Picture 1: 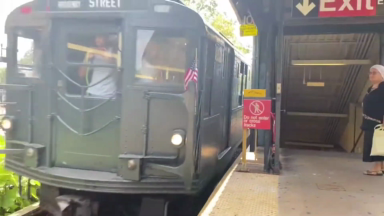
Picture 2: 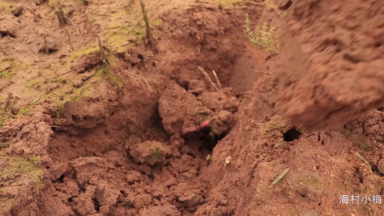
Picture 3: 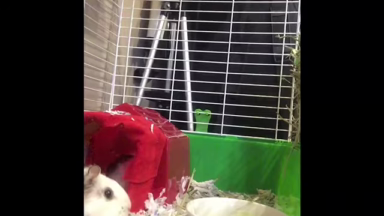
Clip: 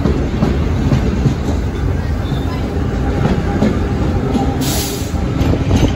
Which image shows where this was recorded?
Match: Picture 1